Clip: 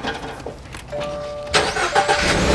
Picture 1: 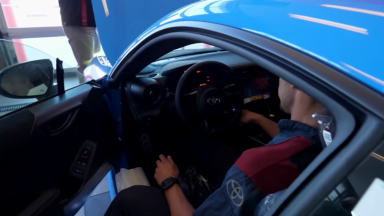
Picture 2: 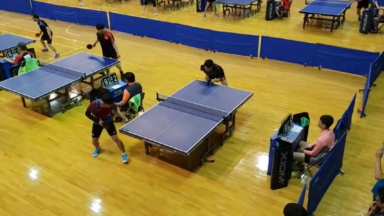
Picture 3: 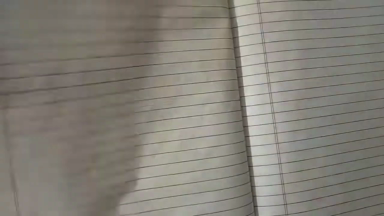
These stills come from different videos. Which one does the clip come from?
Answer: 1